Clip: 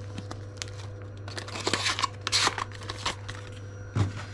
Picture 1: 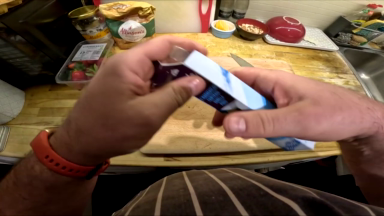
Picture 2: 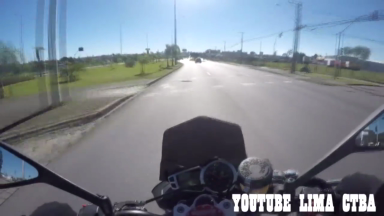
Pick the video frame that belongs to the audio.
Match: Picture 1